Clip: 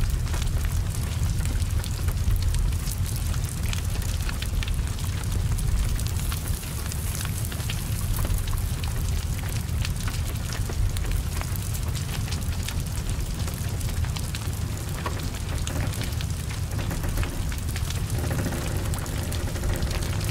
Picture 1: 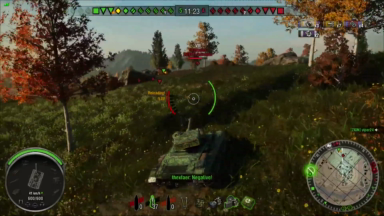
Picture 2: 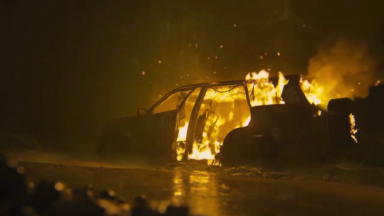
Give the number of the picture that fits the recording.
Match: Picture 2